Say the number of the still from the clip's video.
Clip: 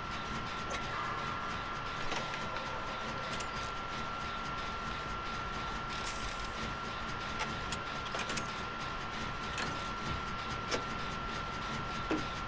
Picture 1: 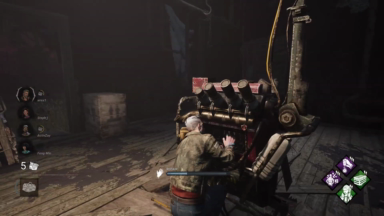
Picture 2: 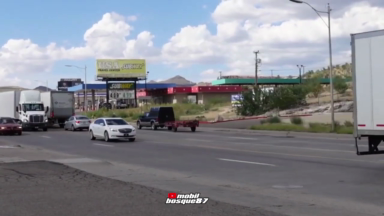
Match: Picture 1